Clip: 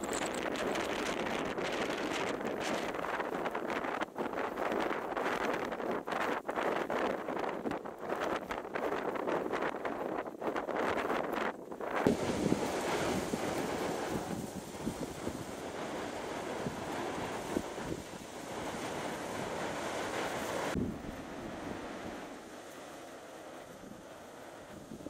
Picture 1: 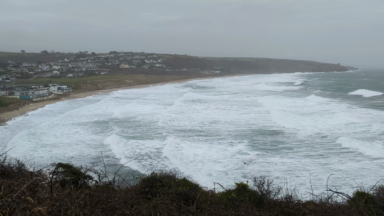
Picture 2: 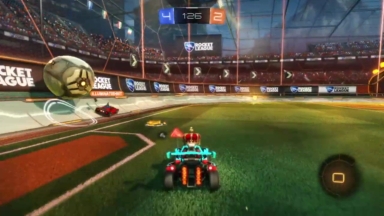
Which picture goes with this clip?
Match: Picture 1